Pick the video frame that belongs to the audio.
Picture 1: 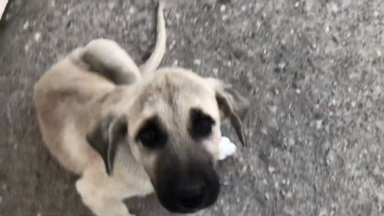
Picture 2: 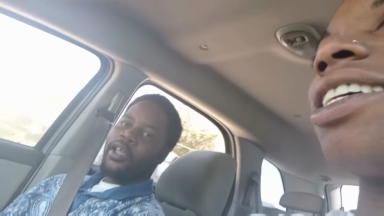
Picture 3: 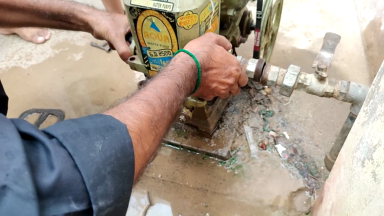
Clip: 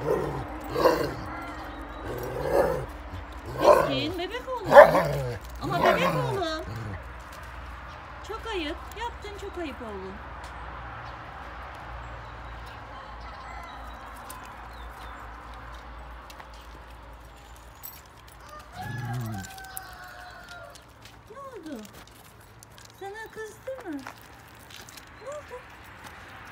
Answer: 1